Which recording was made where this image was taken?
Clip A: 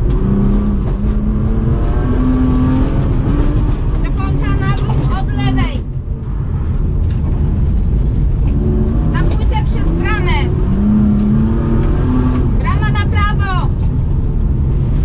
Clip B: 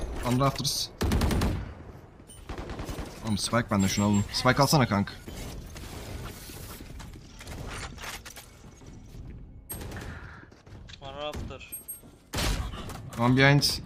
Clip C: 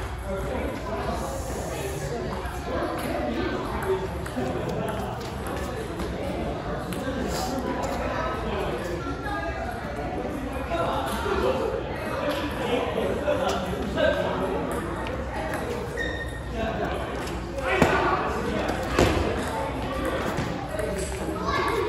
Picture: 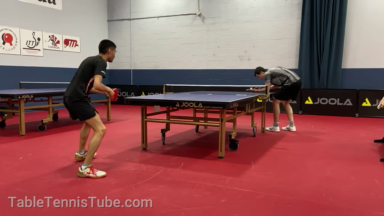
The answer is C